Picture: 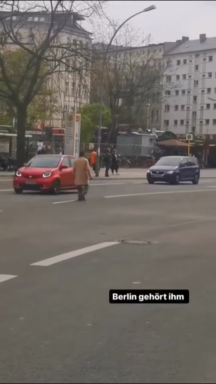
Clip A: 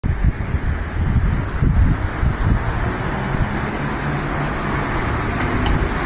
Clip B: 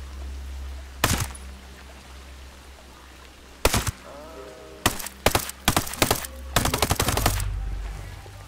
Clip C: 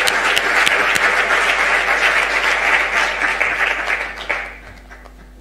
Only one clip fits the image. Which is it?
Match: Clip A